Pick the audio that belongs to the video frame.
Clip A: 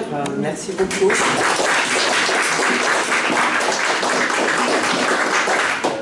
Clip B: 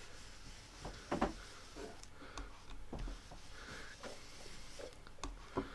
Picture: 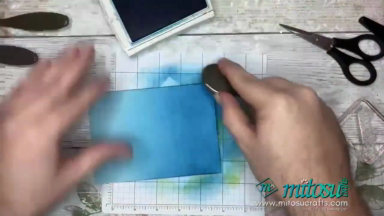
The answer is B